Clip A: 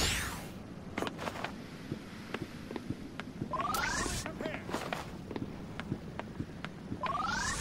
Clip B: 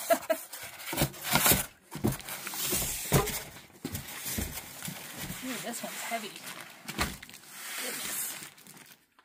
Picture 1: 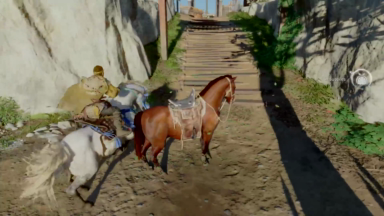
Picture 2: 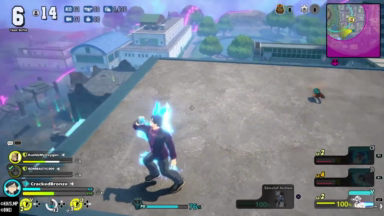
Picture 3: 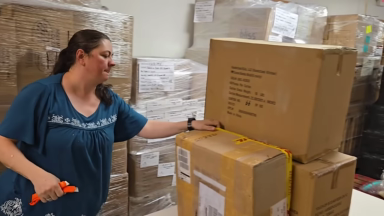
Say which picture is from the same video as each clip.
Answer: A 2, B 3